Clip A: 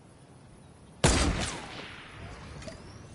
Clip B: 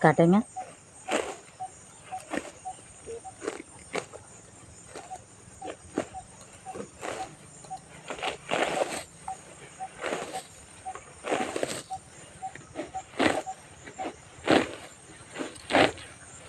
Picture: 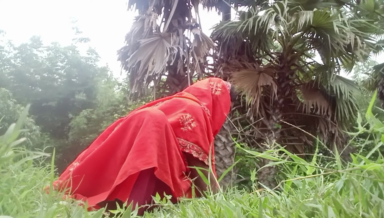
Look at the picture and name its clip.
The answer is B